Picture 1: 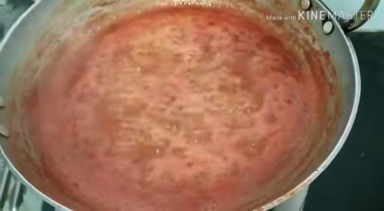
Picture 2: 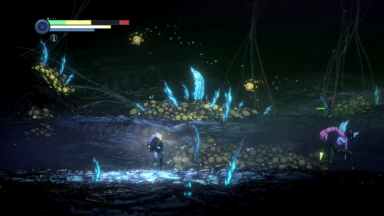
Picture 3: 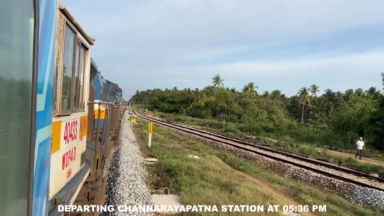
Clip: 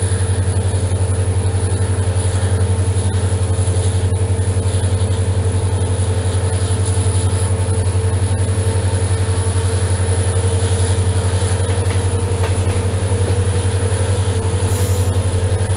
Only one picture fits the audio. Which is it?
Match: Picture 3